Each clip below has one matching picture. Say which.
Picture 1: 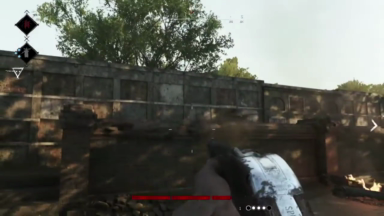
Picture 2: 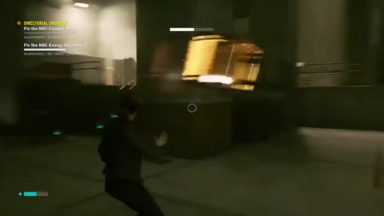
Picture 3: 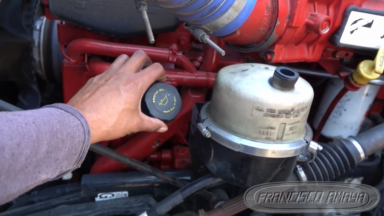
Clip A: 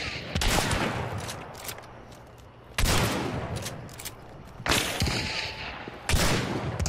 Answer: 1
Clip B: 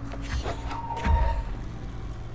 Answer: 2